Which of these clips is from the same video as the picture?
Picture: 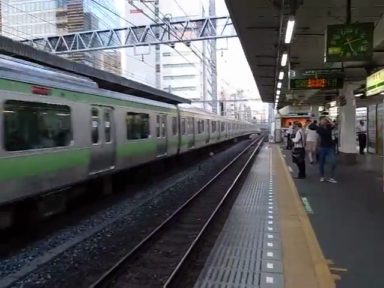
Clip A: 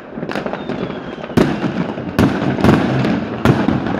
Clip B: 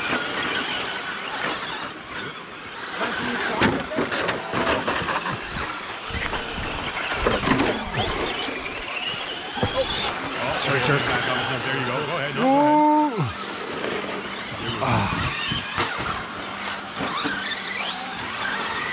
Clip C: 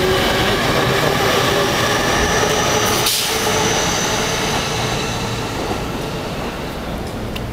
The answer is C